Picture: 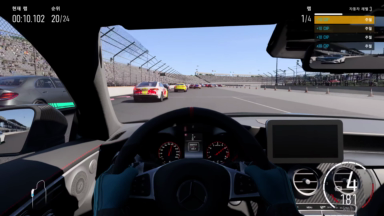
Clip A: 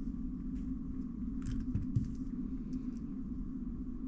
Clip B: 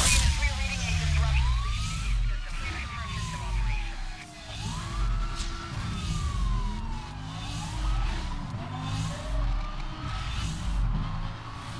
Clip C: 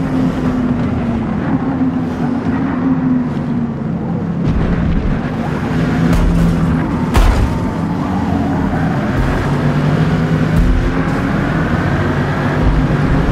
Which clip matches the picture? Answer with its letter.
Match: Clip C